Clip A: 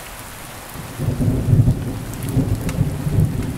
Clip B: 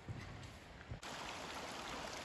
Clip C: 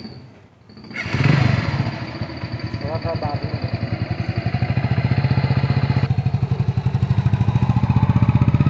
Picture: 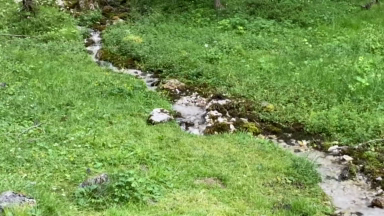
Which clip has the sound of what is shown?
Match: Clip B